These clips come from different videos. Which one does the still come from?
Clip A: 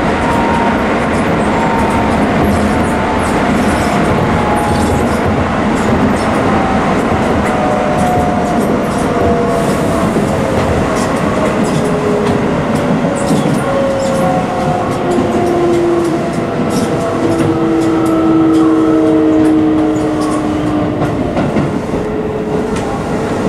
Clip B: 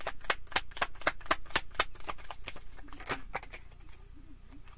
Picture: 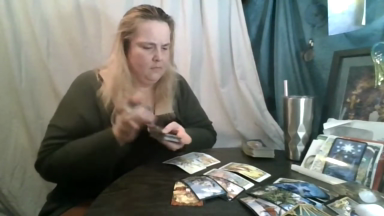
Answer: B